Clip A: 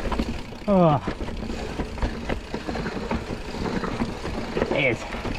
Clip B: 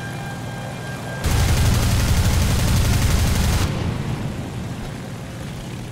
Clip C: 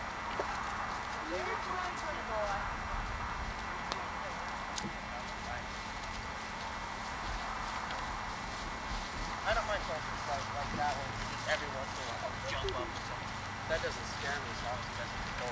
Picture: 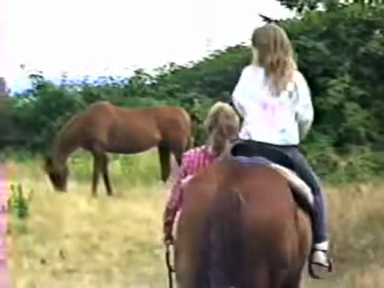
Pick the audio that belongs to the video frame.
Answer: C